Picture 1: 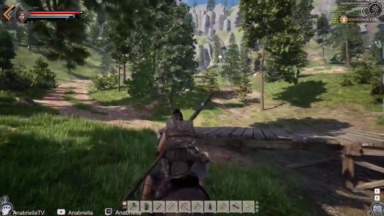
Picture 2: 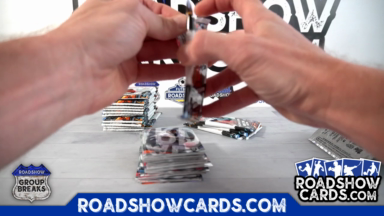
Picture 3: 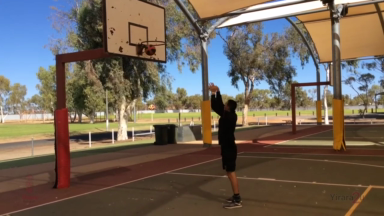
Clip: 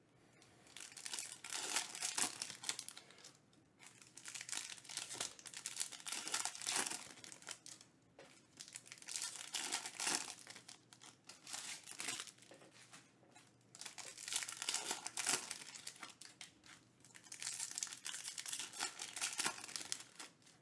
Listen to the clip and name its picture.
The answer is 2